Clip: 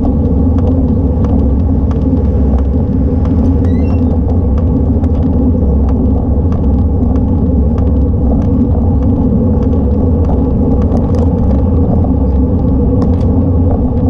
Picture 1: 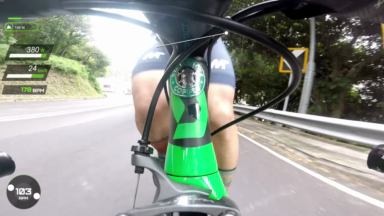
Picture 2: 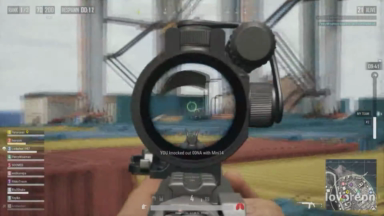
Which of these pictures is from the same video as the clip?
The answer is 1